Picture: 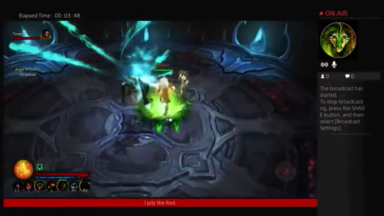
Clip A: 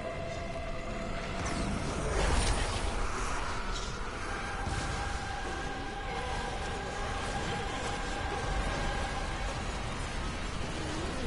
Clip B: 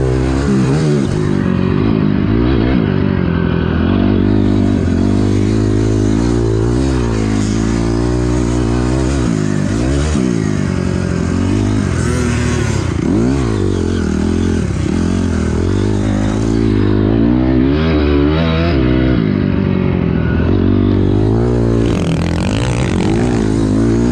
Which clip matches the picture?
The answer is A